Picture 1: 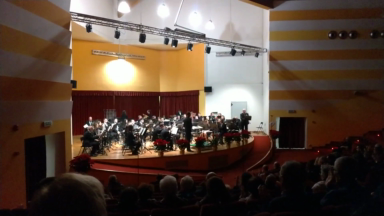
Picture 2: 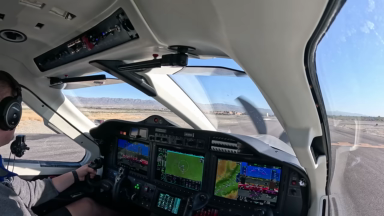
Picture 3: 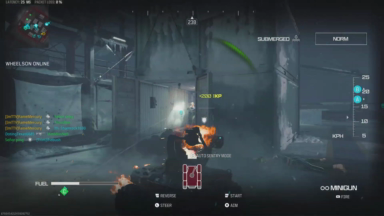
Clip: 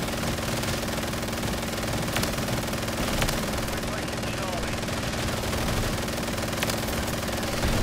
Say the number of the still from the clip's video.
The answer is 3